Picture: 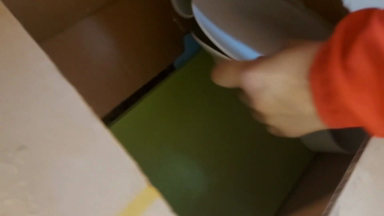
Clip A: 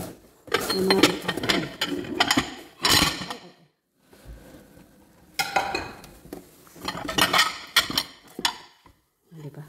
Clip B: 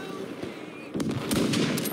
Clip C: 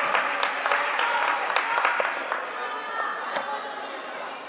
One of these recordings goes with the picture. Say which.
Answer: A